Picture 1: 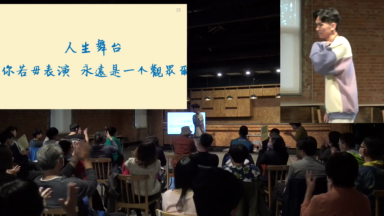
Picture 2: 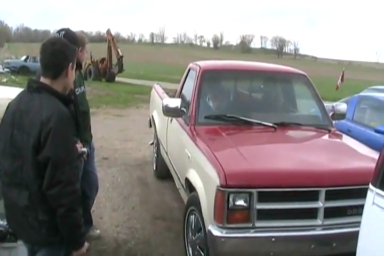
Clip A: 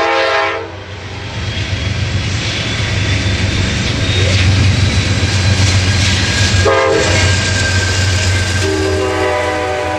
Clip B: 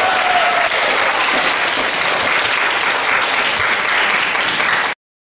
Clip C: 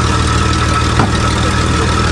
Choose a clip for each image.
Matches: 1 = B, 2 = C